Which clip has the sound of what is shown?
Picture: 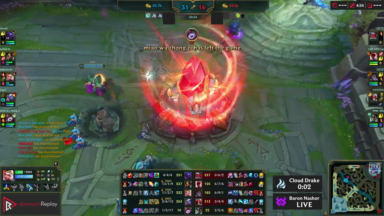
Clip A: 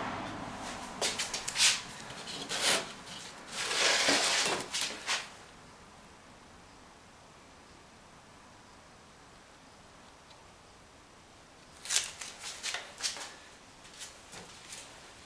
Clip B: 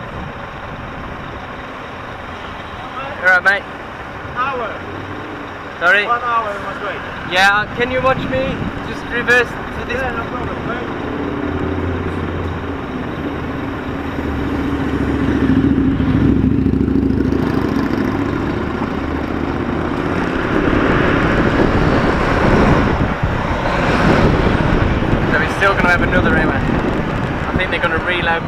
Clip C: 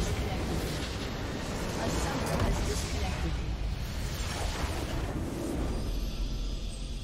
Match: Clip C